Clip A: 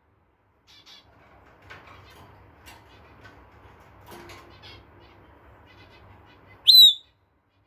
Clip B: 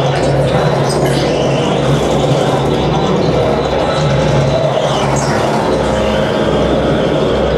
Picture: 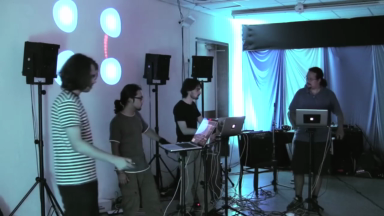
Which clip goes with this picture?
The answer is B